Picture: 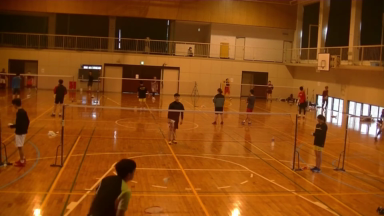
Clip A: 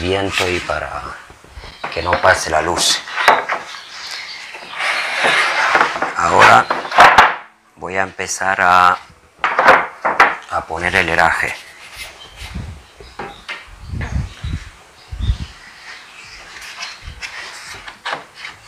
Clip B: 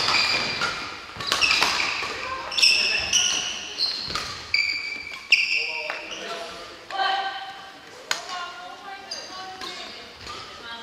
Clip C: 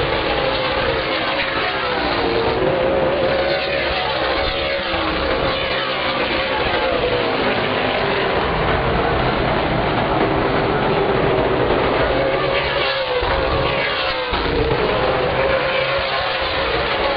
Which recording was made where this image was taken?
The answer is B